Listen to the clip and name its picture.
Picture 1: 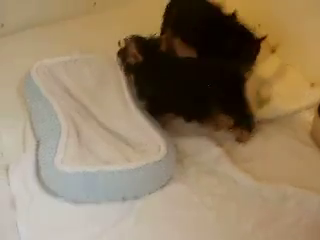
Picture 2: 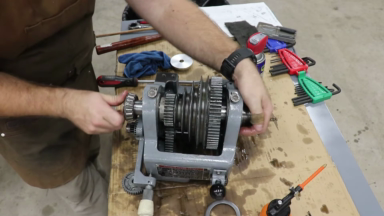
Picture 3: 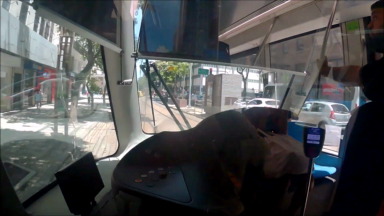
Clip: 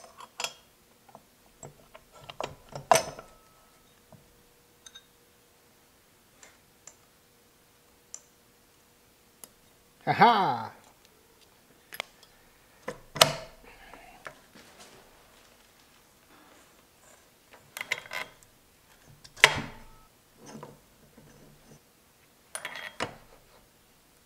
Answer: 2